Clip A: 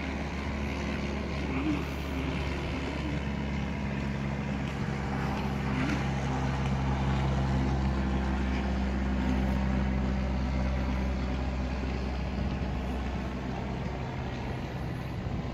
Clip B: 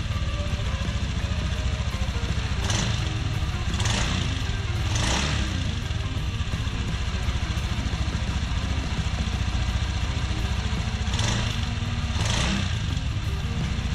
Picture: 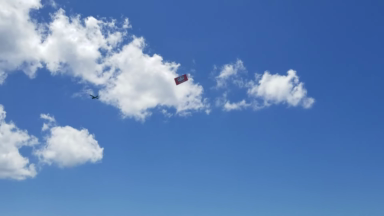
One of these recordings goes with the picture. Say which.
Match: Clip A